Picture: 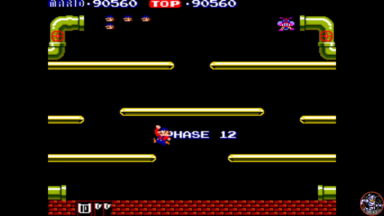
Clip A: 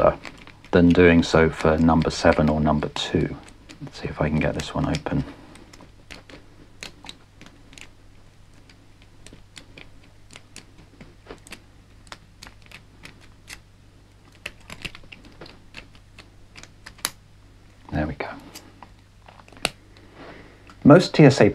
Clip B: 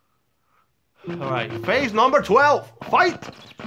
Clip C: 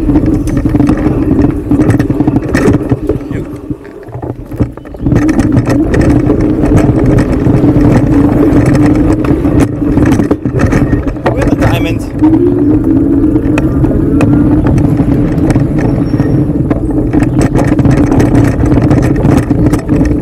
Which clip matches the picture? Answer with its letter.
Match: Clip B